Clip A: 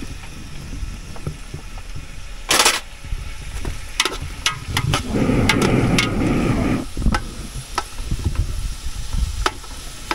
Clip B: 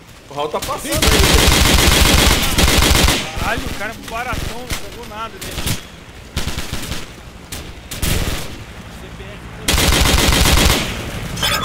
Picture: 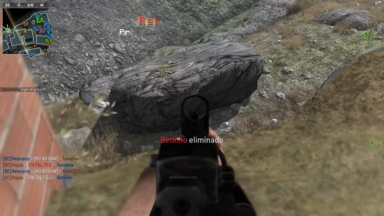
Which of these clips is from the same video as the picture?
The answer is B